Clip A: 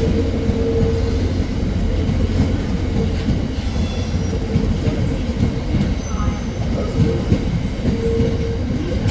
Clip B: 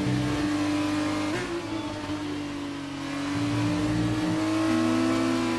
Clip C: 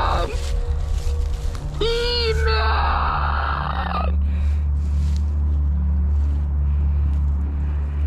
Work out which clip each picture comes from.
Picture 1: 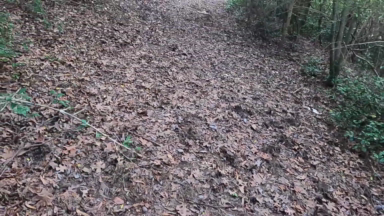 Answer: C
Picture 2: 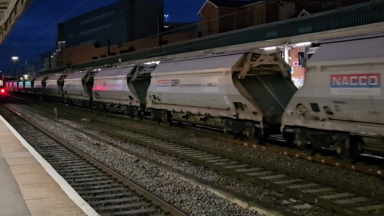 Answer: A